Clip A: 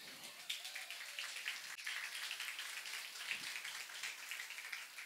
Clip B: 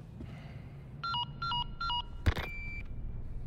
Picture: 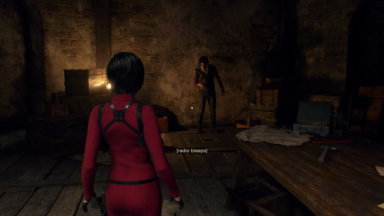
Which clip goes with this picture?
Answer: B